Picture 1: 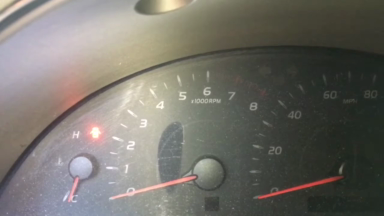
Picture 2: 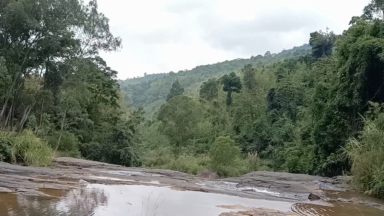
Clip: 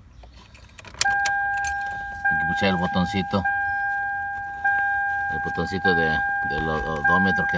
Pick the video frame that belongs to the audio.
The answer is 1